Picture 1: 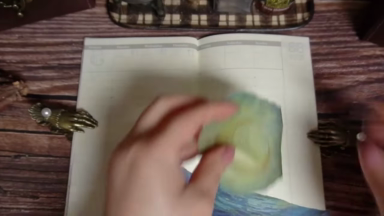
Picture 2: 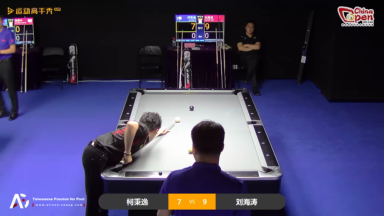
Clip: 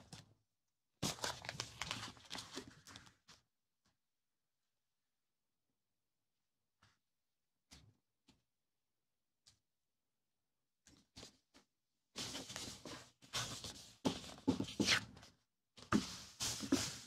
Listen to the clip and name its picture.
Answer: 1